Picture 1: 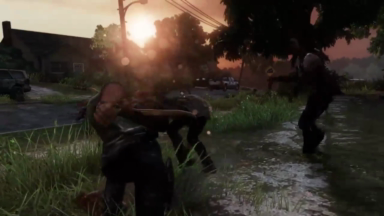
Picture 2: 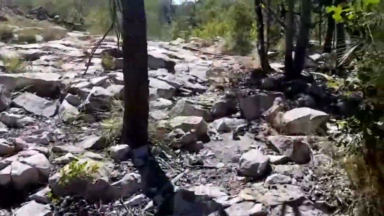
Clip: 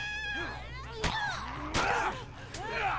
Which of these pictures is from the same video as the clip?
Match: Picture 1